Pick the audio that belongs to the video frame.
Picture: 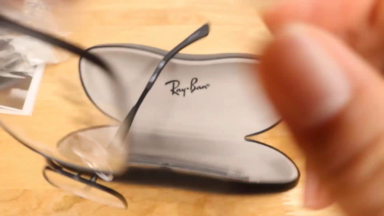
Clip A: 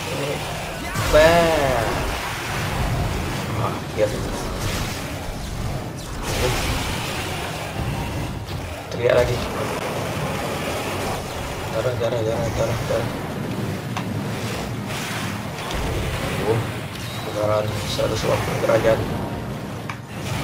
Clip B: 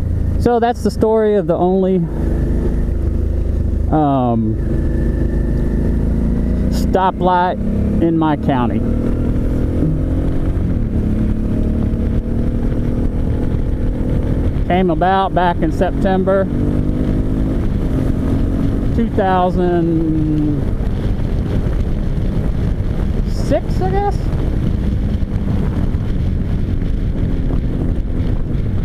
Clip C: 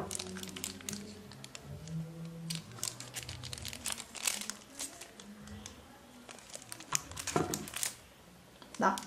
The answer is C